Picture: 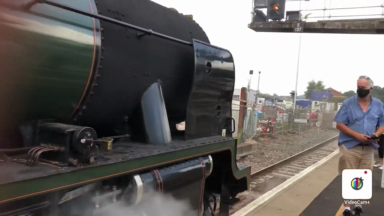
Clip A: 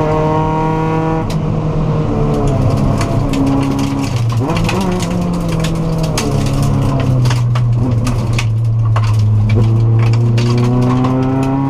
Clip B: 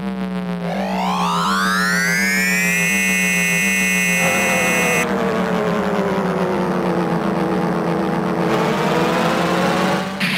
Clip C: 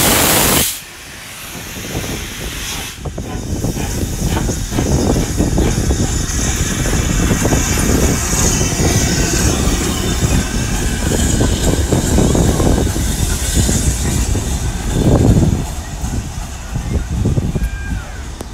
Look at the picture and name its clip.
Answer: C